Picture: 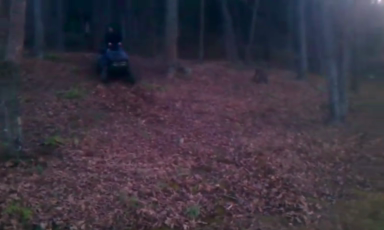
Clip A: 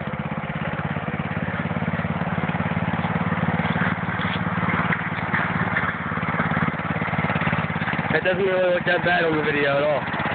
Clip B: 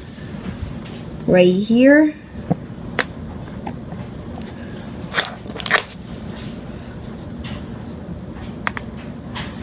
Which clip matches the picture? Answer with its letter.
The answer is A